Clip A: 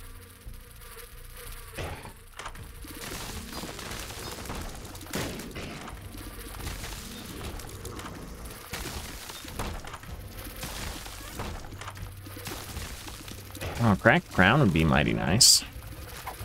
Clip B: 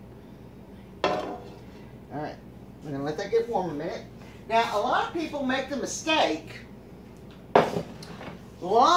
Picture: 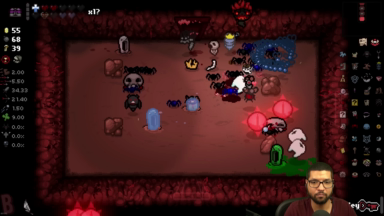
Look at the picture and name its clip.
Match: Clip A